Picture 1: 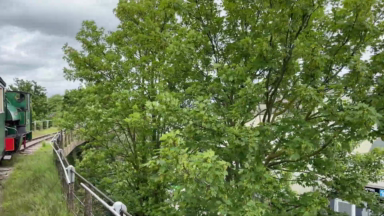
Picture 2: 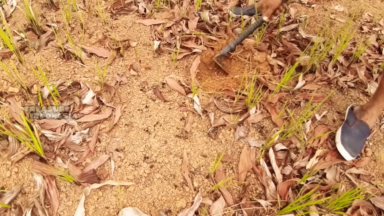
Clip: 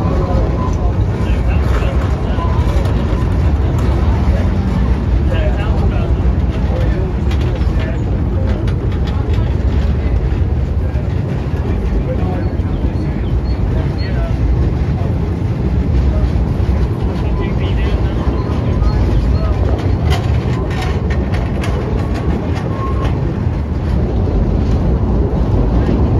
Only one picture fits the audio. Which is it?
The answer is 1